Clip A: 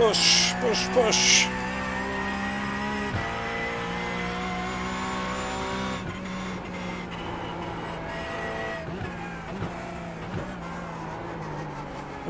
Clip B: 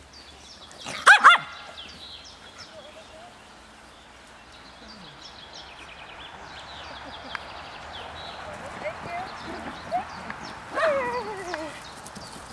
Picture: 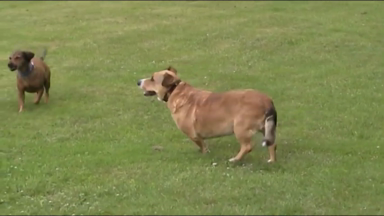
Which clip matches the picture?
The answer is B